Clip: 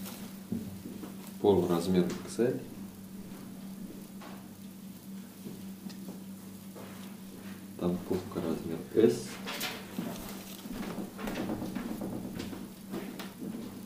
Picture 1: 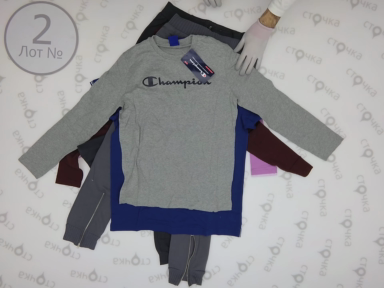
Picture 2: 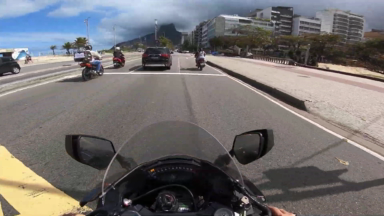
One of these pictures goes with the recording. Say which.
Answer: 1